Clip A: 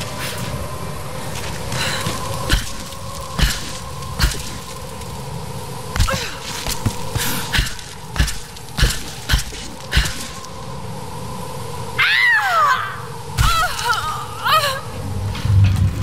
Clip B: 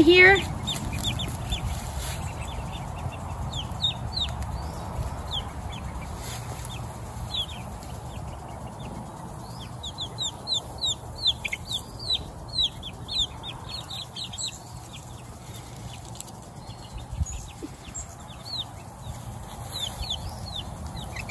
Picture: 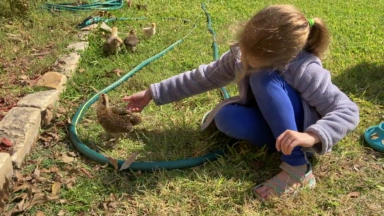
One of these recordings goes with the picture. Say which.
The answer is B